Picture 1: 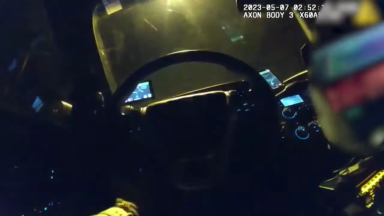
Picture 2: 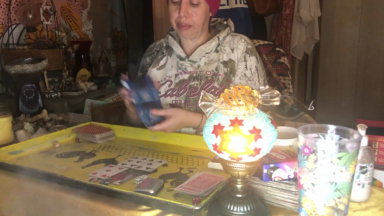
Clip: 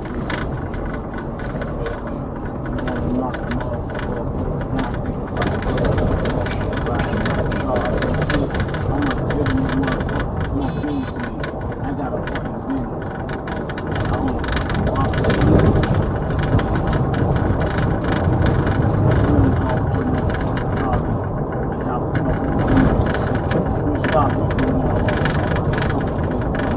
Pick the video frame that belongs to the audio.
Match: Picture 1